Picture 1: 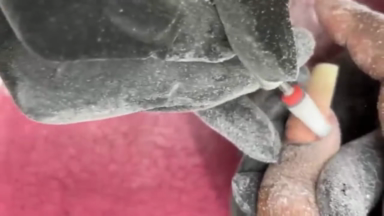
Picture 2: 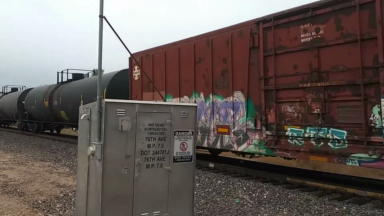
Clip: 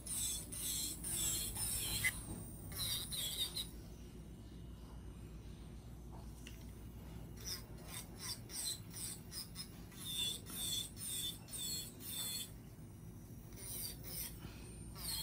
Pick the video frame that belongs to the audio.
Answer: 1